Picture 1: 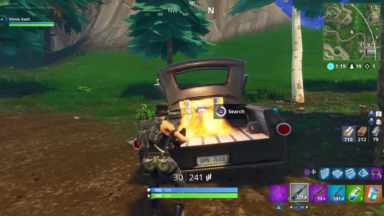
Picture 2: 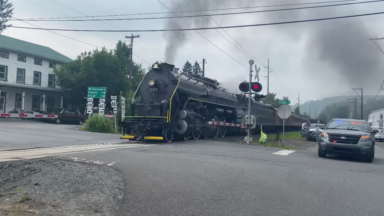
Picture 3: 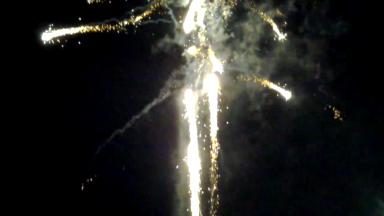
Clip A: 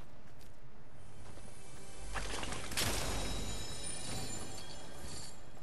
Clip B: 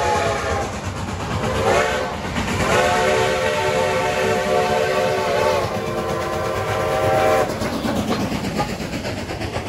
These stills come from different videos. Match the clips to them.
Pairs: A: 1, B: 2